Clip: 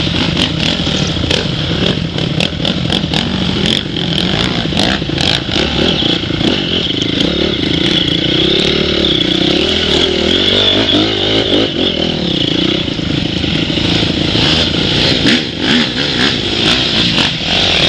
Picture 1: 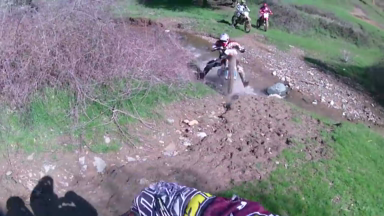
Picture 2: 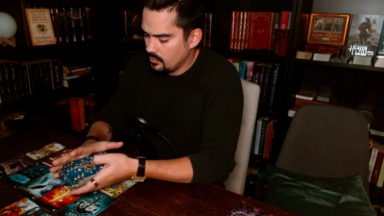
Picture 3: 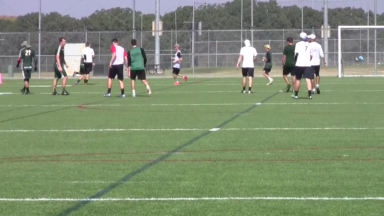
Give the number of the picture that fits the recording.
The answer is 1